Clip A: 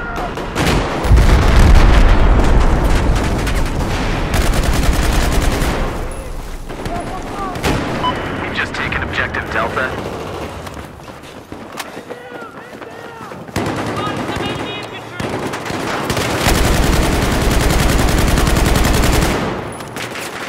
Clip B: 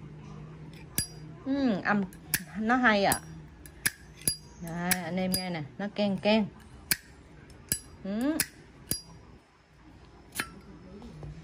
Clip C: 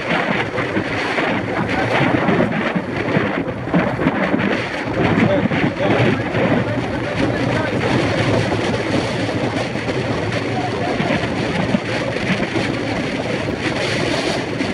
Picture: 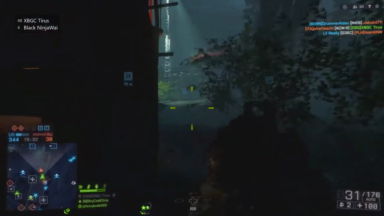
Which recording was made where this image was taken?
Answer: A